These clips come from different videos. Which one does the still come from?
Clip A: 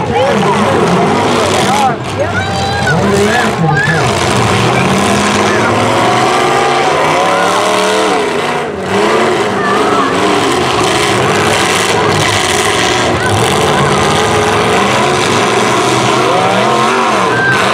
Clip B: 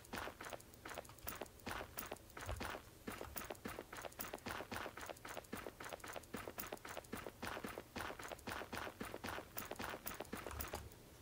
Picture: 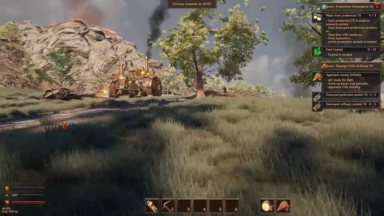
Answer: B